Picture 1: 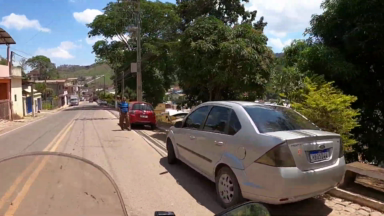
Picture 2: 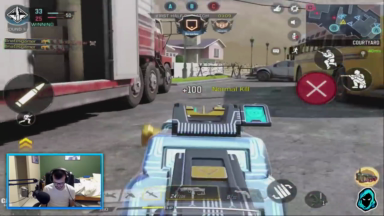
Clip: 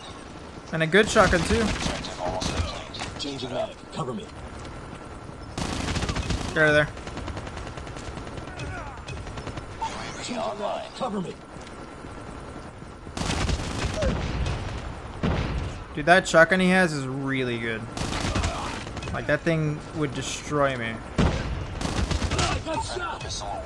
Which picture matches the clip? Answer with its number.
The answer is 2